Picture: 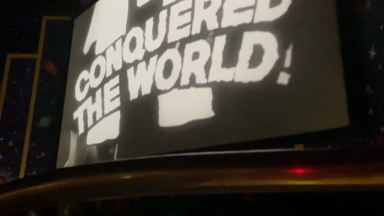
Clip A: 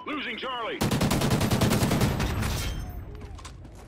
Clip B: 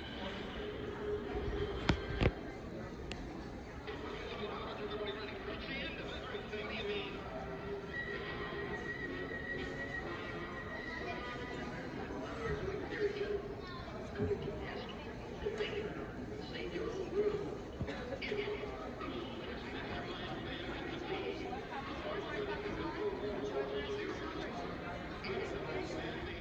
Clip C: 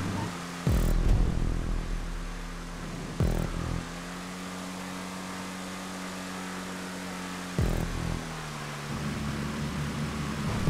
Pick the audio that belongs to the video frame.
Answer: B